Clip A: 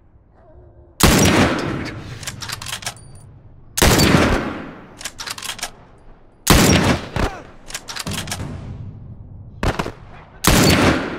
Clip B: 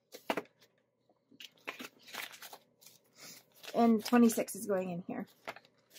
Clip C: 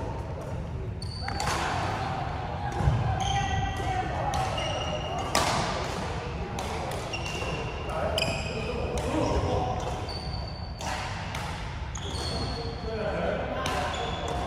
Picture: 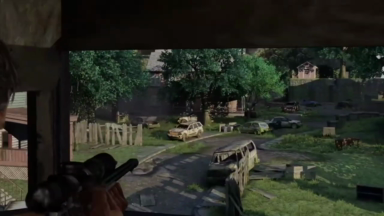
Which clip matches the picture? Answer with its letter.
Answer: A